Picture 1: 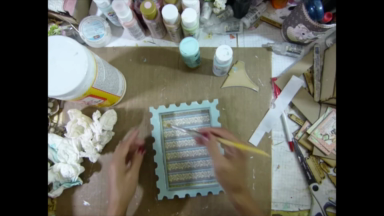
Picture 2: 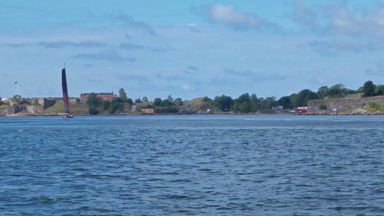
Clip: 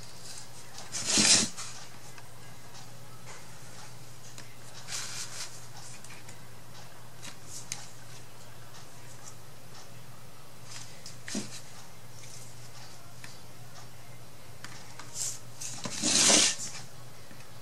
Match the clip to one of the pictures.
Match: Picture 1